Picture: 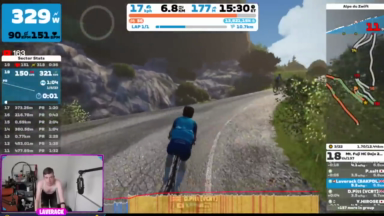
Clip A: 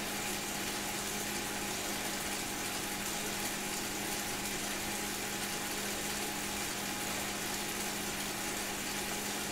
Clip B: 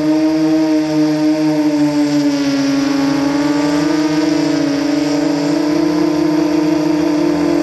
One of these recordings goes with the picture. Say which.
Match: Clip A